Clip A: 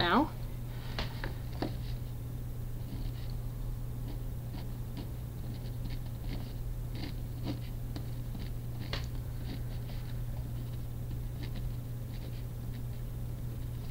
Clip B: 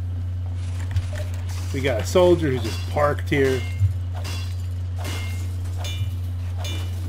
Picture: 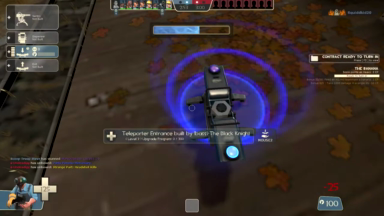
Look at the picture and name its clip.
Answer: B